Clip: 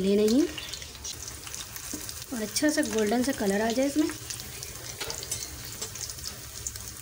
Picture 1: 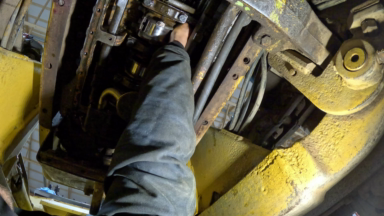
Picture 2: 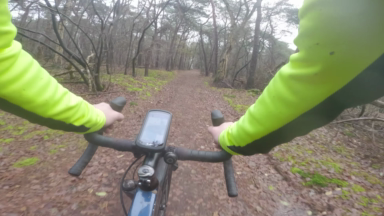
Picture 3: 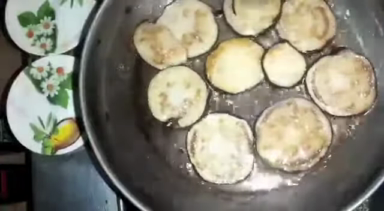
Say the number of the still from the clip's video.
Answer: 3